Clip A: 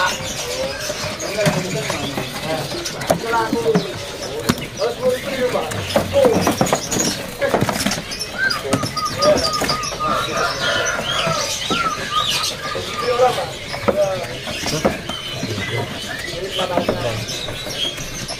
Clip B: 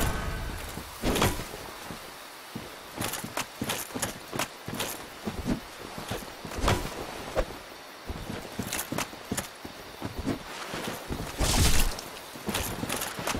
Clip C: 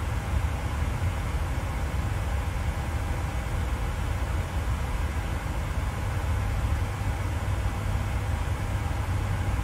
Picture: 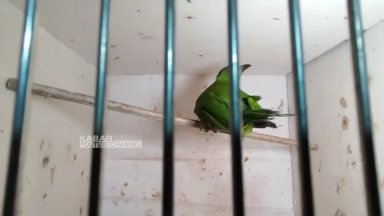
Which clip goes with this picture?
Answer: A